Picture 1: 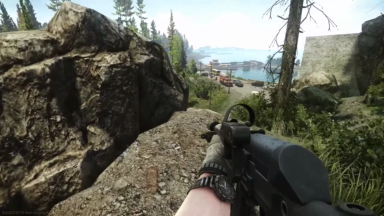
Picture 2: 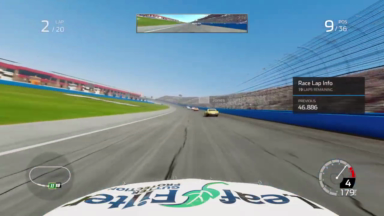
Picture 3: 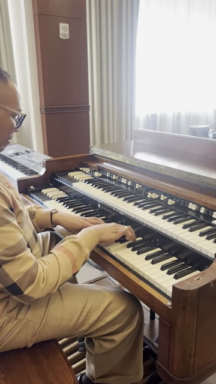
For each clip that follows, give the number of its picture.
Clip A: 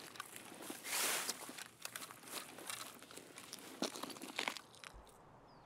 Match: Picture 1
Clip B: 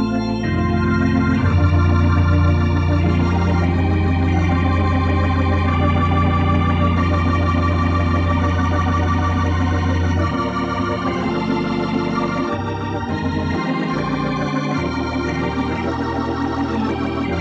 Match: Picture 3